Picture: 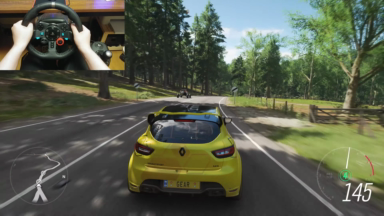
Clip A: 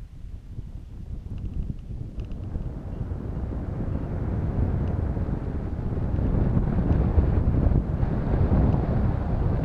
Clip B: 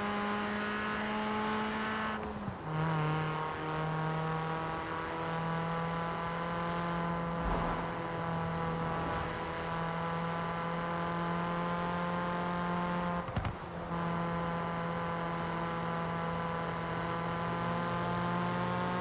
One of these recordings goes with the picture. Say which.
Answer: B